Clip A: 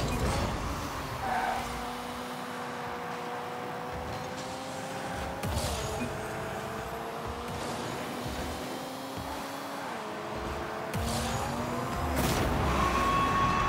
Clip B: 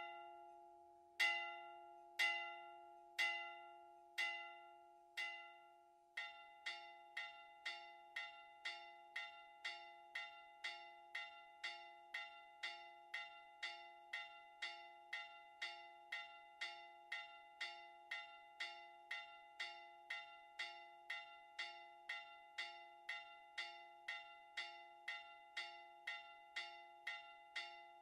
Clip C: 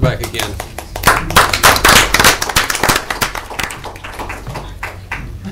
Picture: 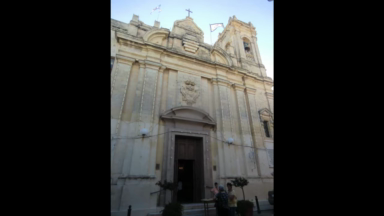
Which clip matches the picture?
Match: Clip B